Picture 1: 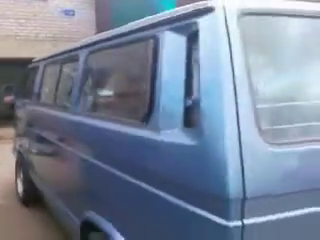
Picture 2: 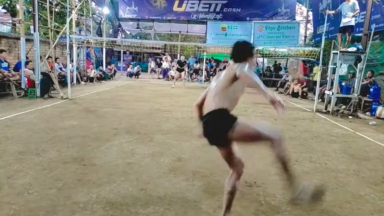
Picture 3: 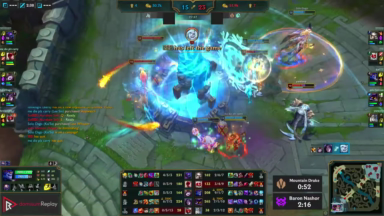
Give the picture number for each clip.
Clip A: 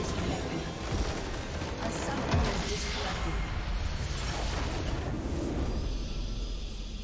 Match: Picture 3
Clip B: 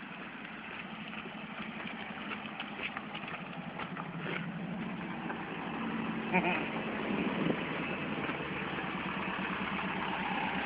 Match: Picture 1